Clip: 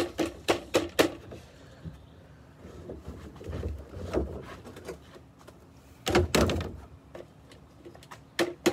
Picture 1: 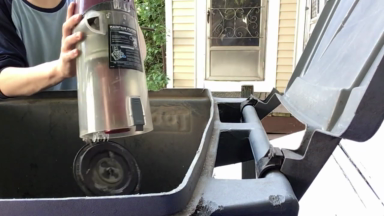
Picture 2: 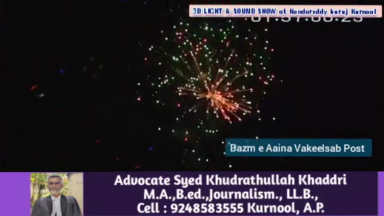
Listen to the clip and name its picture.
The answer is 1